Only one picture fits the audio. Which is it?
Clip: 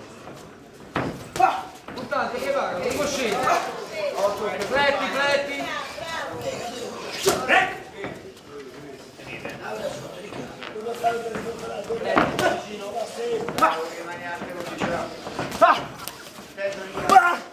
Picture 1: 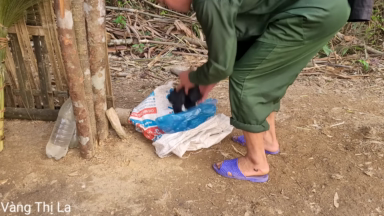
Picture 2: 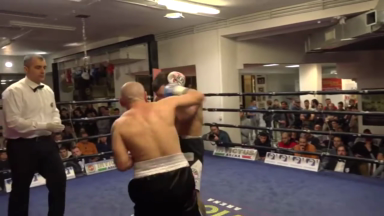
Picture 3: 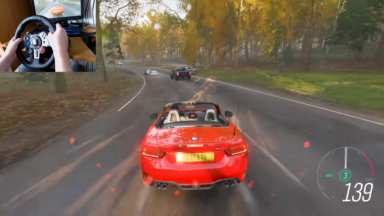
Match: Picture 2